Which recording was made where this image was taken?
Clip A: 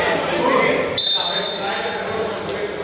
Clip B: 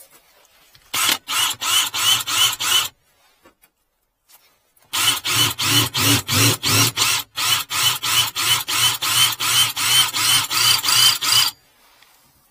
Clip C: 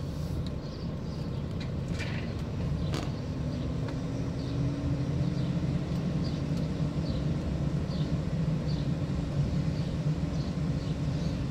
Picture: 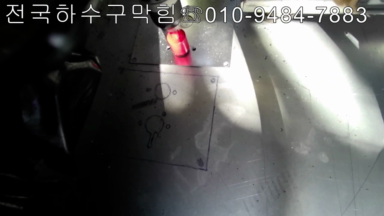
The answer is B